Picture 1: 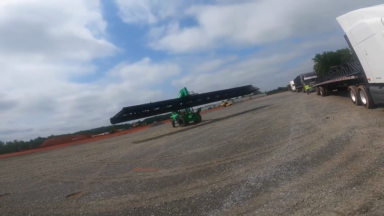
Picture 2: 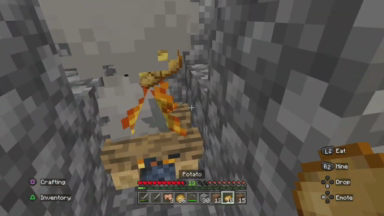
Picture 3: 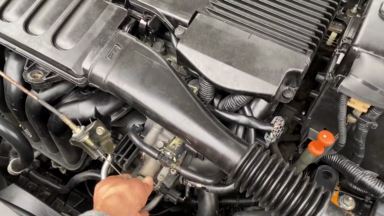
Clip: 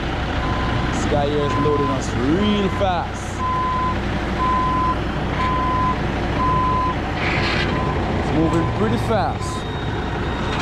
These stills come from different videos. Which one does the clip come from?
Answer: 1